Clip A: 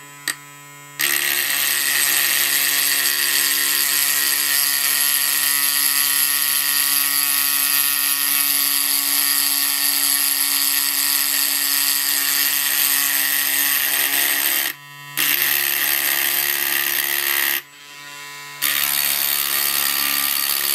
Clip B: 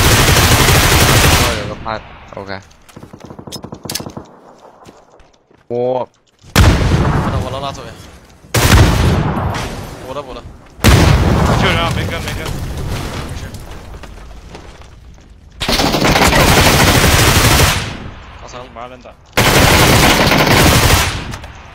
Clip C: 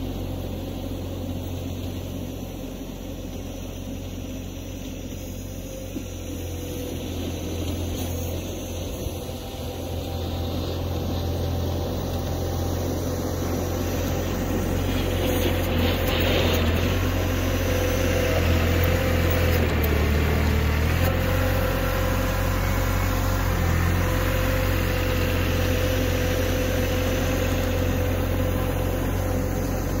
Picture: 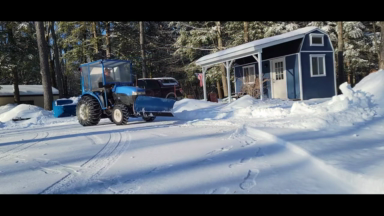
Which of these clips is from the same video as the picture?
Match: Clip C